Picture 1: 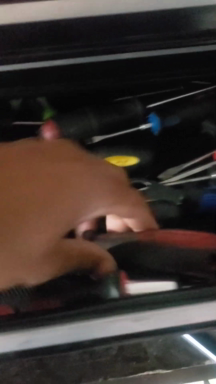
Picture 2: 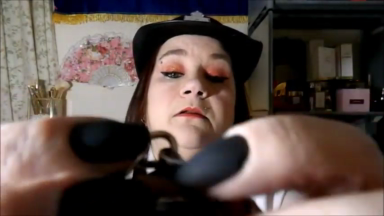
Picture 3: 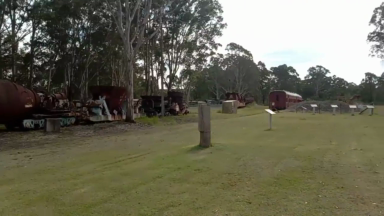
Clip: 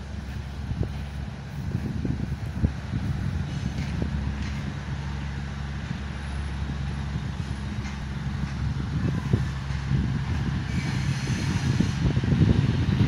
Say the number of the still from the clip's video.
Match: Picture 3